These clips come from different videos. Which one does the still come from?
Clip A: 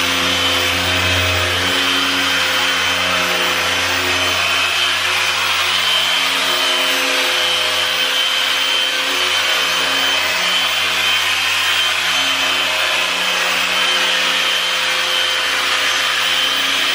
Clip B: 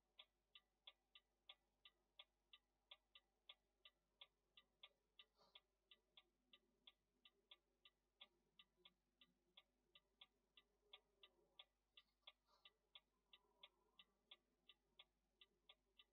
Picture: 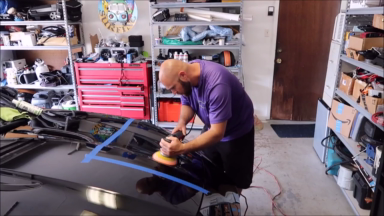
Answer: A